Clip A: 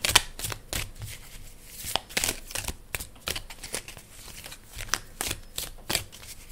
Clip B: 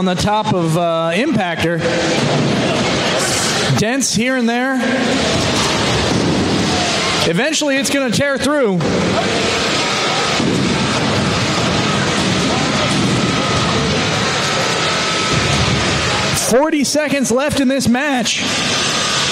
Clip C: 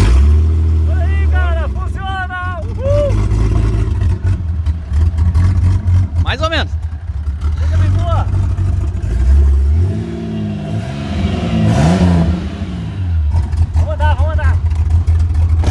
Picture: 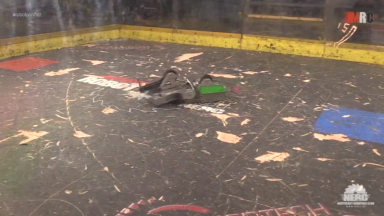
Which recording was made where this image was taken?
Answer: B